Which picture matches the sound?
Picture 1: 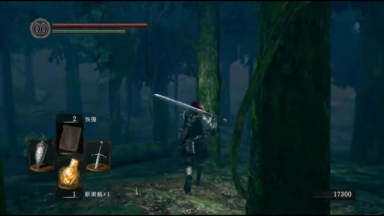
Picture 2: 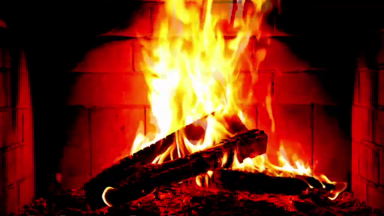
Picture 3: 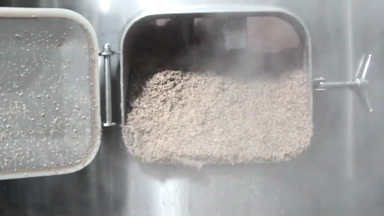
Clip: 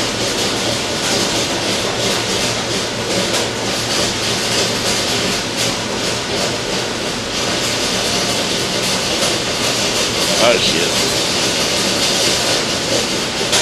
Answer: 3